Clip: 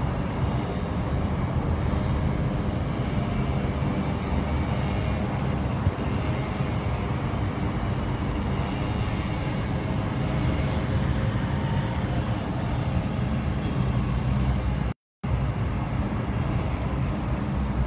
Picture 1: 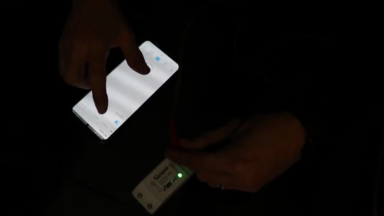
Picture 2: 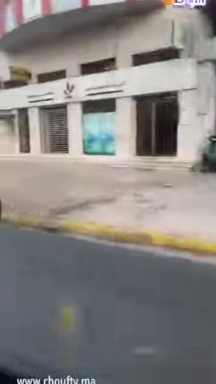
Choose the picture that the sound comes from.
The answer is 2